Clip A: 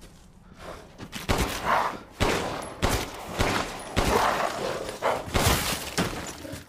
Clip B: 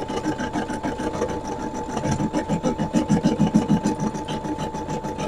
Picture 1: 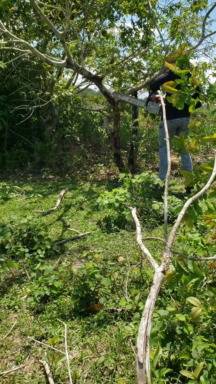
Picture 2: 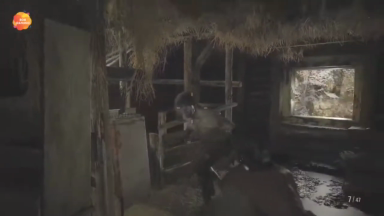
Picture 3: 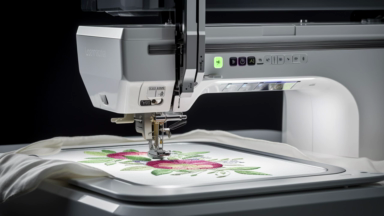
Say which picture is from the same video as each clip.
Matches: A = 2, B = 3